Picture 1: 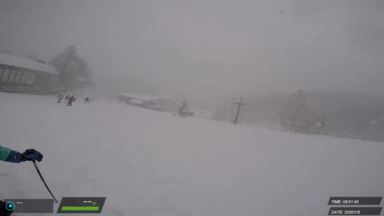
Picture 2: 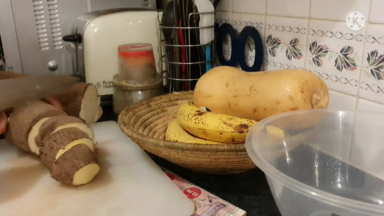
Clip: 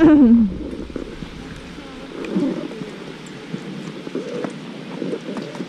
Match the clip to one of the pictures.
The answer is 1